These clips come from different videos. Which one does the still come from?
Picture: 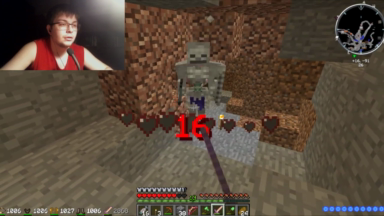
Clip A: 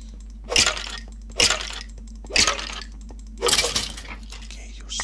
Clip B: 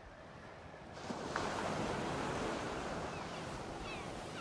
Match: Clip A